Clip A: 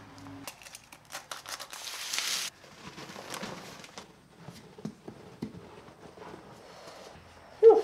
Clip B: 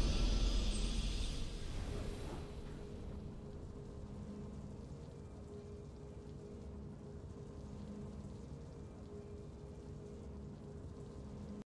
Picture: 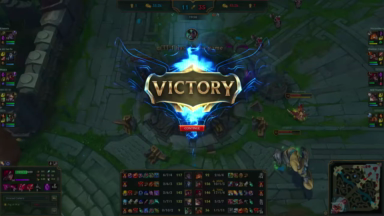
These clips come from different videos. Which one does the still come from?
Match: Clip B